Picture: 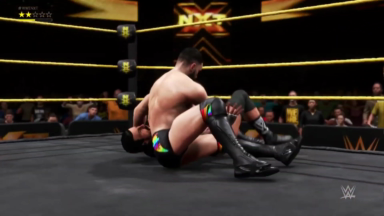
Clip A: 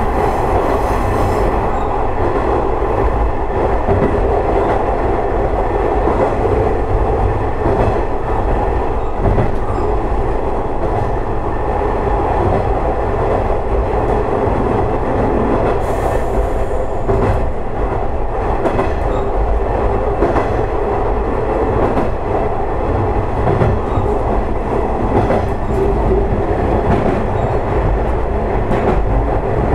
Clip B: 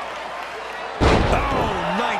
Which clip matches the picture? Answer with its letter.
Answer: B